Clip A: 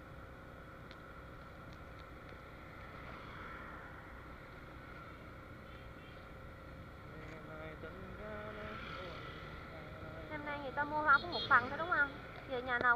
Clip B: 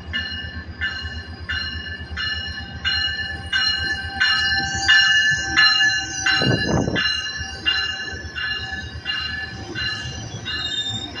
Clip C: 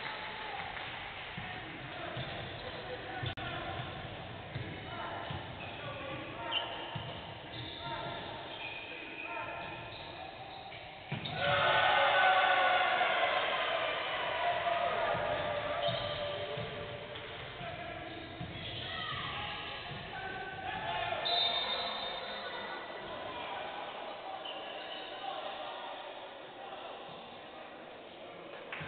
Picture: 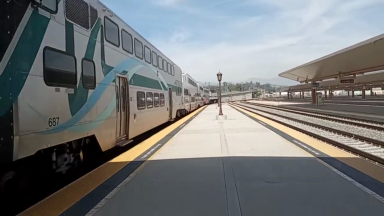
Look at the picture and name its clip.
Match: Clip B